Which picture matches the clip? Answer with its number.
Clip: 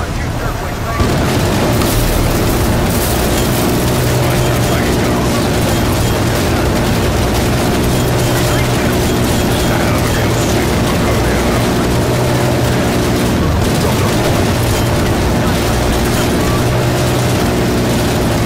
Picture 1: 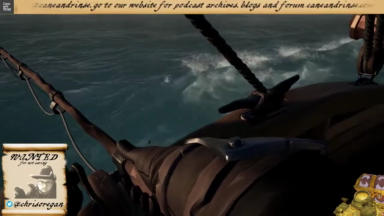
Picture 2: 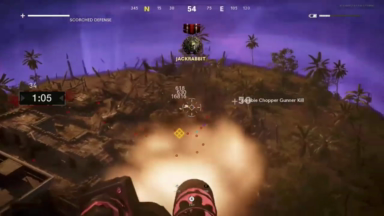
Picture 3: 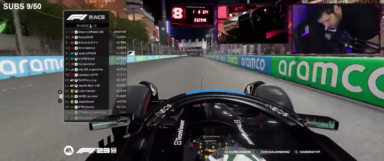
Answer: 2